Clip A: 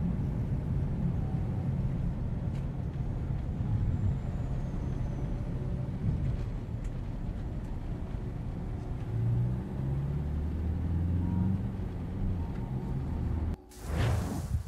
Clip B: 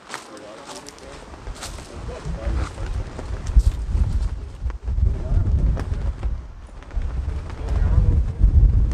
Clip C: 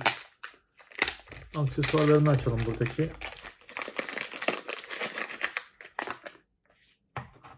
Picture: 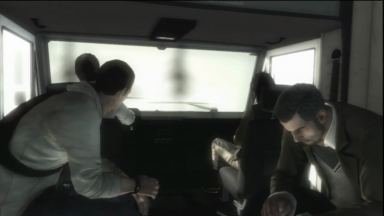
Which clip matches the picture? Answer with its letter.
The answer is A